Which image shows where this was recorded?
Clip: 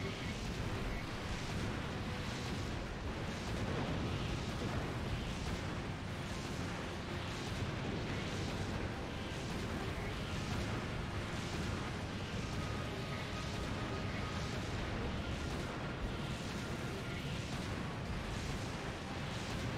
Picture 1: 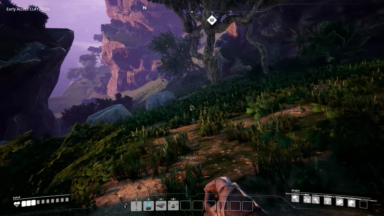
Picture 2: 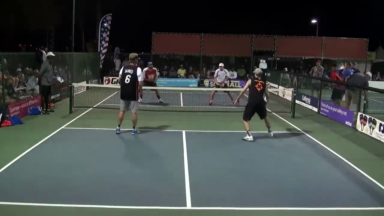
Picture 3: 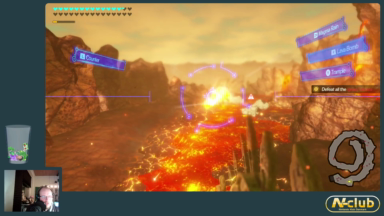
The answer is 3